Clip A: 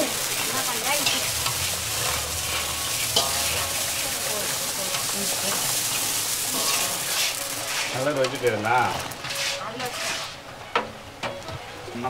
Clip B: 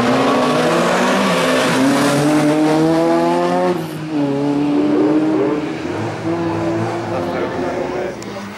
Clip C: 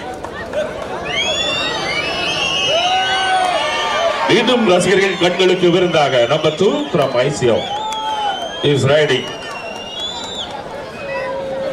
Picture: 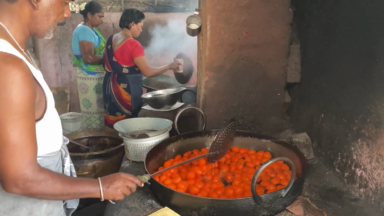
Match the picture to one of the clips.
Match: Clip A